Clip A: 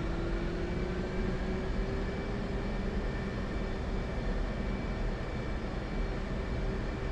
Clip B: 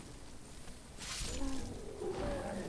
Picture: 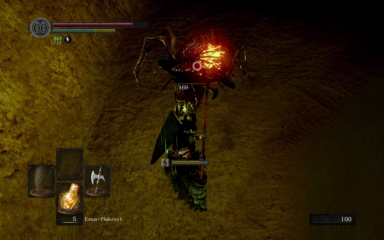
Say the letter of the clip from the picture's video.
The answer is B